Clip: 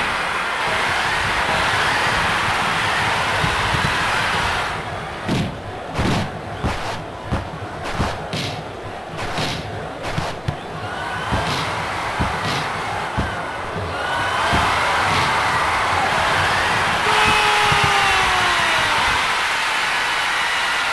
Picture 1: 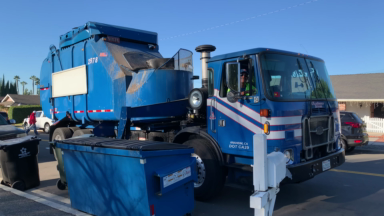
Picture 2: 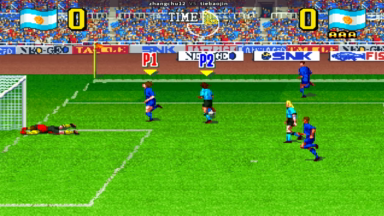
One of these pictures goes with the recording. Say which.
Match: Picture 2